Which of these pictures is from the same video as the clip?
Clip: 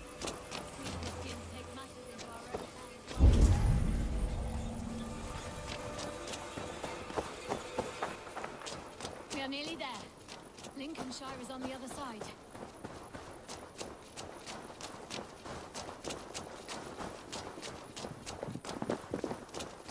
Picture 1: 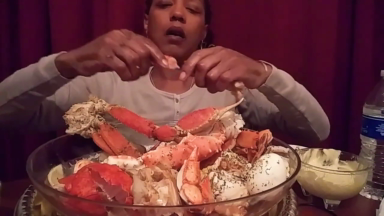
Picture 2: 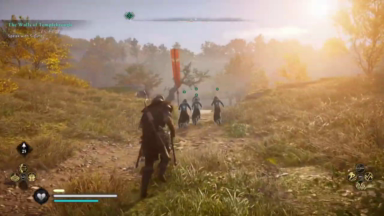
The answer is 2